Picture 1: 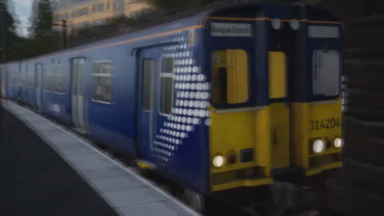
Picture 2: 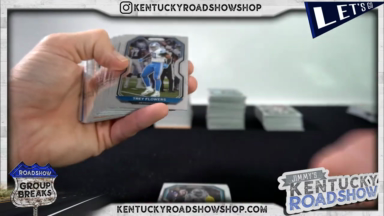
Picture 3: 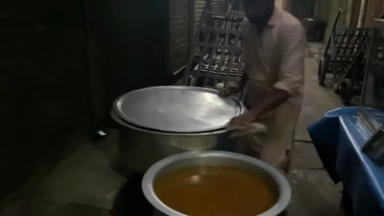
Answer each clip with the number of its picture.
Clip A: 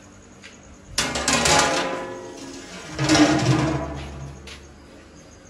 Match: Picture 3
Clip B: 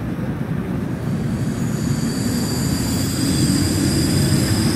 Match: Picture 1